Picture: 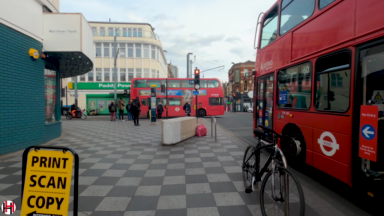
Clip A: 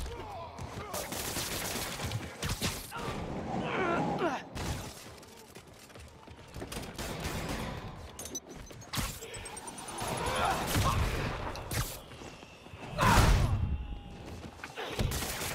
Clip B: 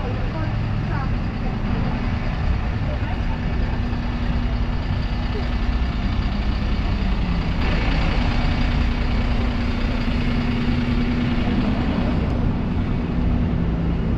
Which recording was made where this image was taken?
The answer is B